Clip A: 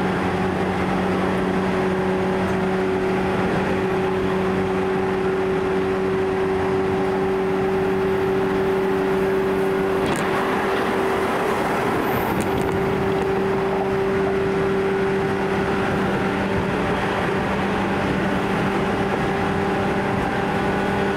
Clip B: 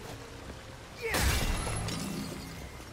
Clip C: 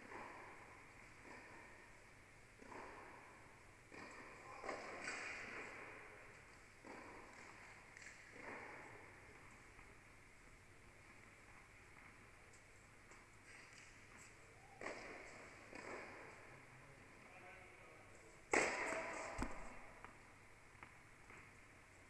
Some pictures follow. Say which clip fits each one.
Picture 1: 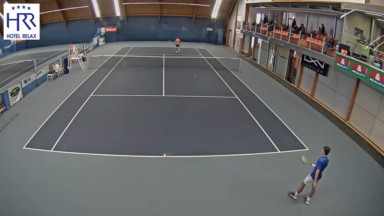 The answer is C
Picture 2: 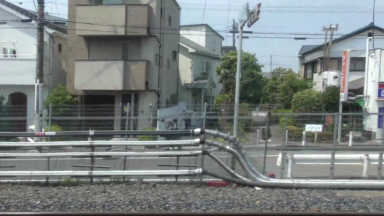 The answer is A